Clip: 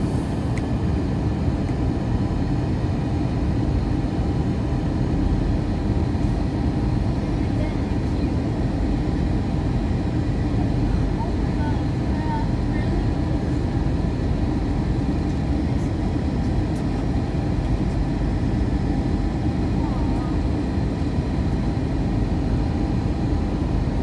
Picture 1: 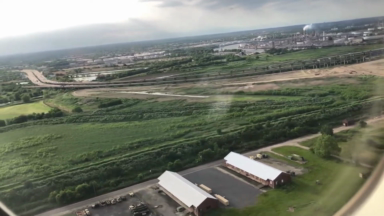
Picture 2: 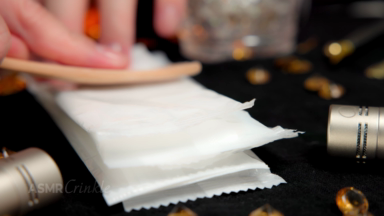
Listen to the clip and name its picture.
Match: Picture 1